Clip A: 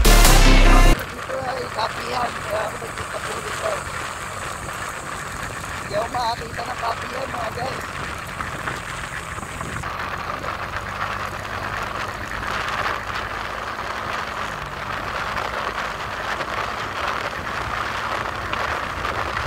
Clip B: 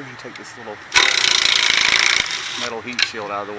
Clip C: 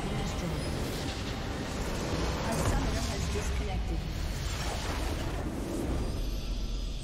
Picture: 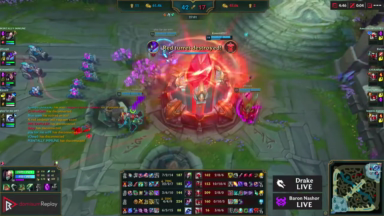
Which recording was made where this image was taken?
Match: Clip C